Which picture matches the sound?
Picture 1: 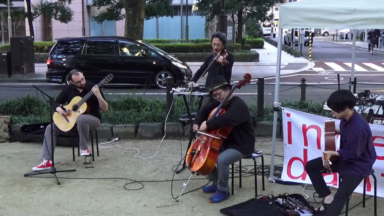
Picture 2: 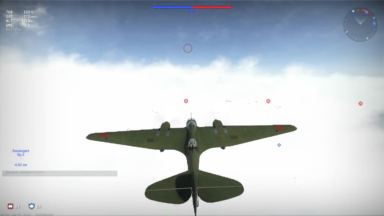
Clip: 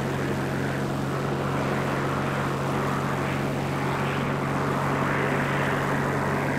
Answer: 2